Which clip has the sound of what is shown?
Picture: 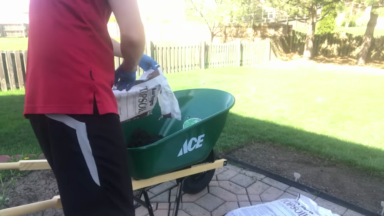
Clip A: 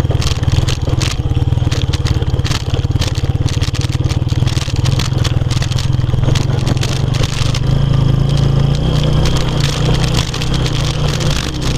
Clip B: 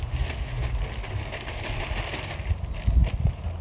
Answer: B